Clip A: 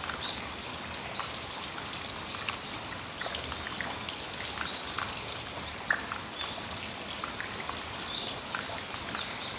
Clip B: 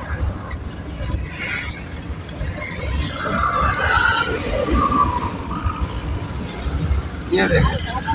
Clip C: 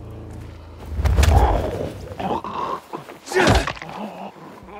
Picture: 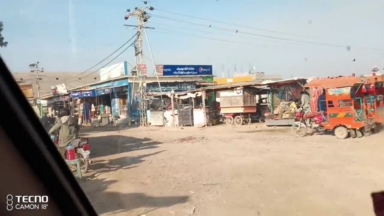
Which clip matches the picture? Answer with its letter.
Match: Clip B